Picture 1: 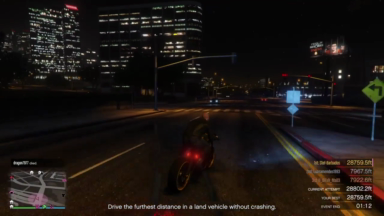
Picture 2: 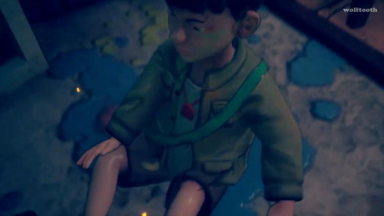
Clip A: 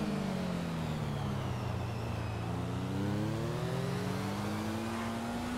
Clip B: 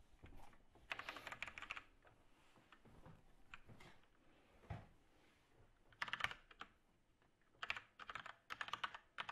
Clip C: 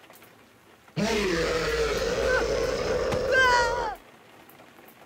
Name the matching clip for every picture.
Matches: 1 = A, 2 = C